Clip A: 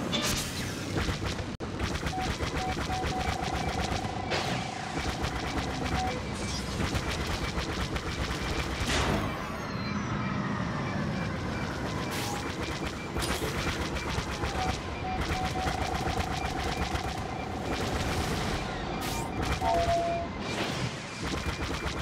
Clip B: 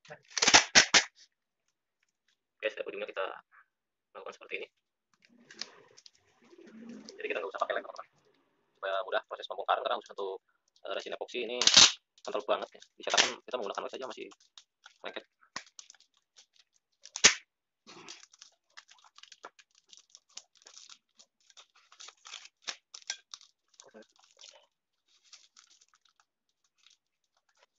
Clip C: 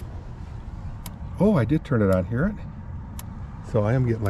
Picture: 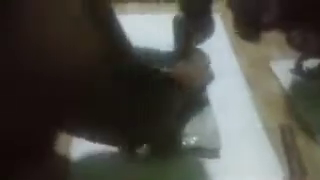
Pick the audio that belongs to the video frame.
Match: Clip B